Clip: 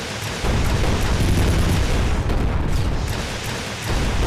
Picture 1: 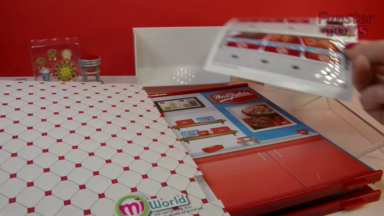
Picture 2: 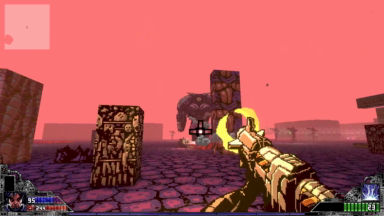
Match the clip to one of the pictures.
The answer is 2